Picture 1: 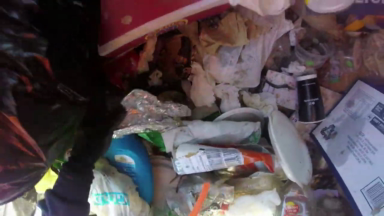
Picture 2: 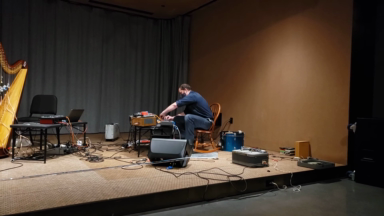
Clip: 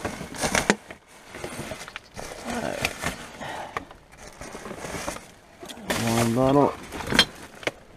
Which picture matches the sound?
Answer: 1